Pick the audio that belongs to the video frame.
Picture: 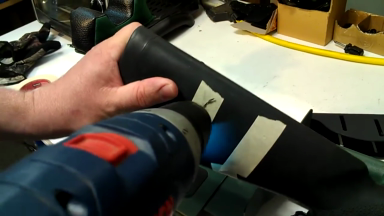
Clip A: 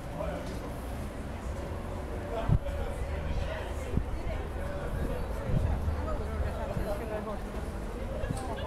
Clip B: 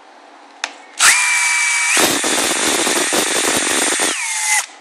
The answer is B